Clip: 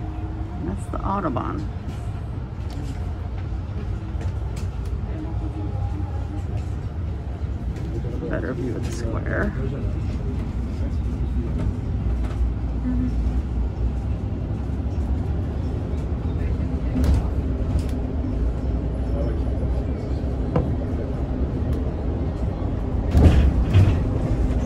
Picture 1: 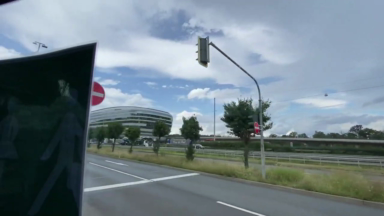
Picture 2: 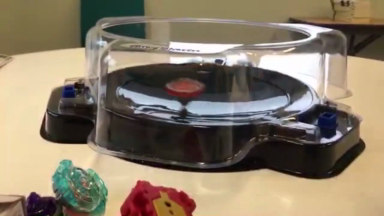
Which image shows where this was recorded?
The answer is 1